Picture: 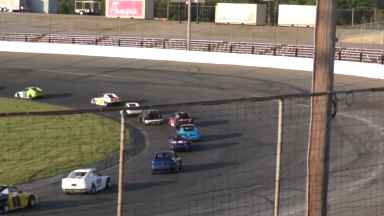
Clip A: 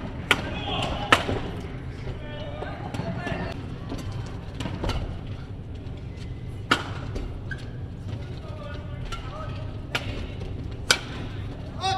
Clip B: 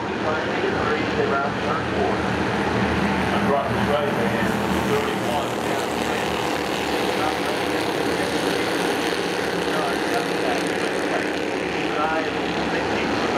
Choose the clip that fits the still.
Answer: B